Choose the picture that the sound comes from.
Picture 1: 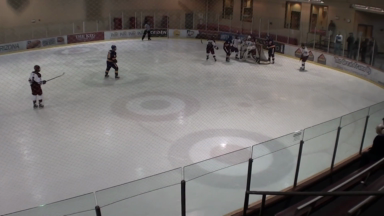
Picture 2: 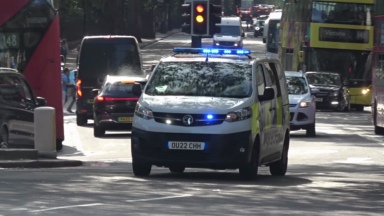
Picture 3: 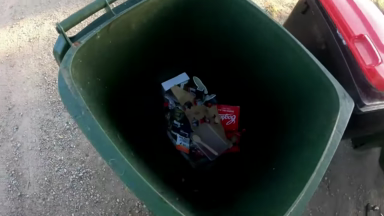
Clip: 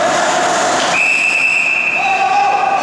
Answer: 1